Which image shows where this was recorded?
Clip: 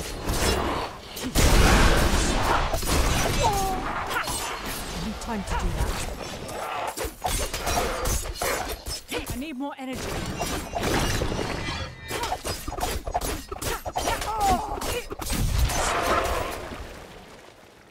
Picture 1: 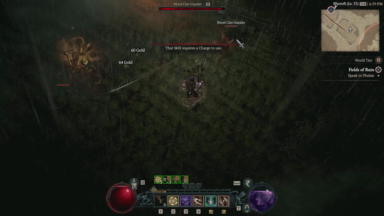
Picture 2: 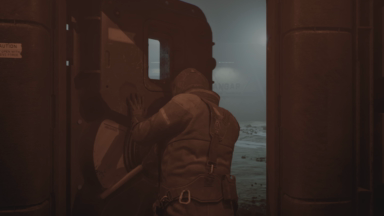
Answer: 1